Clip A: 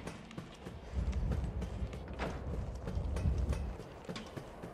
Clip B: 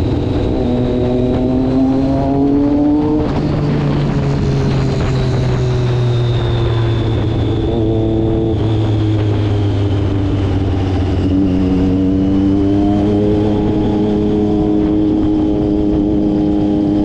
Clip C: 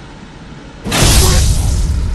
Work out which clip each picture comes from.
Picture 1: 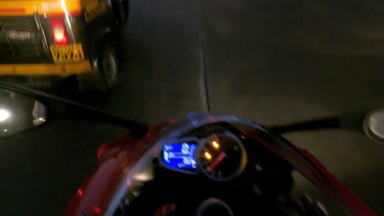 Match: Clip B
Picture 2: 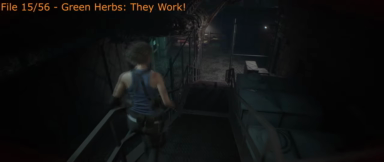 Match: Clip A